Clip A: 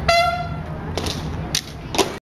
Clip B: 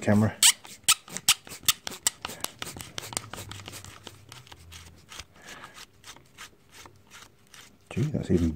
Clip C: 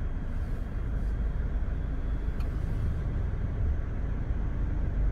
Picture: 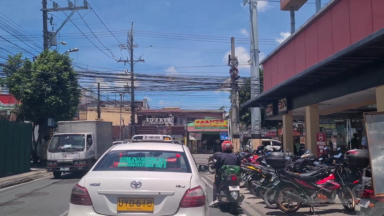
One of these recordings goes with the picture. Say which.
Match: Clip C